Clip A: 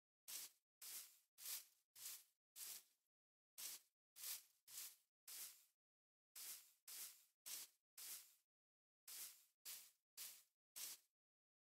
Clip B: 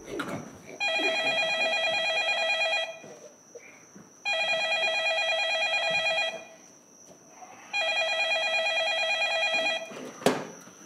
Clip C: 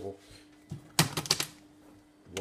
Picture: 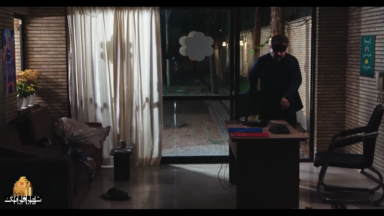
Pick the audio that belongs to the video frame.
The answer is B